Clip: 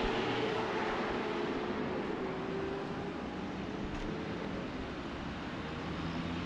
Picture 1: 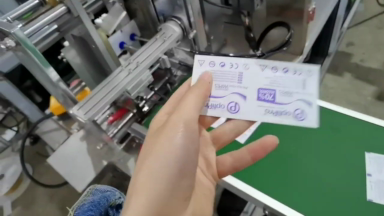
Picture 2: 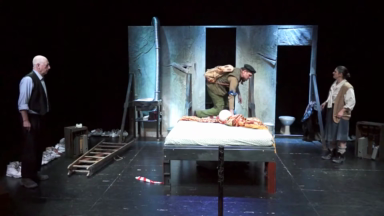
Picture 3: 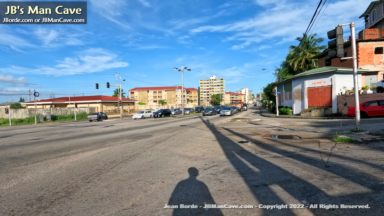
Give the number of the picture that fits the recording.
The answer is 3